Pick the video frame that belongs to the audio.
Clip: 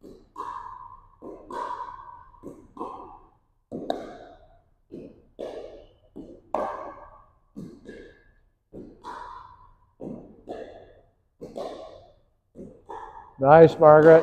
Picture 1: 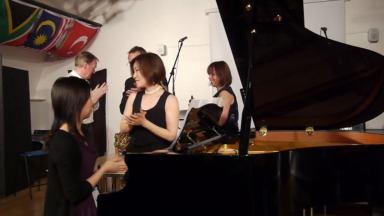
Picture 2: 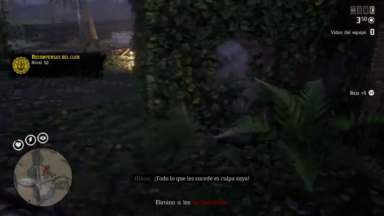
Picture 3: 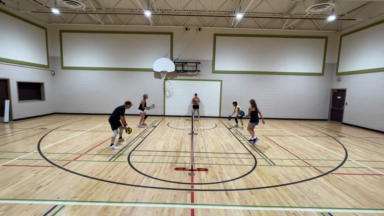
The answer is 3